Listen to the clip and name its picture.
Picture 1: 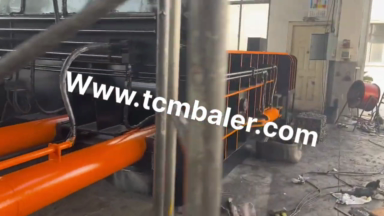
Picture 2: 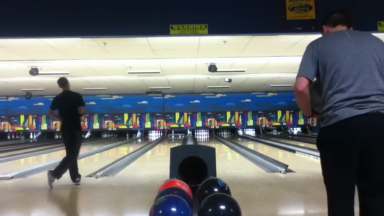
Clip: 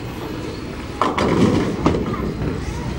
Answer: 2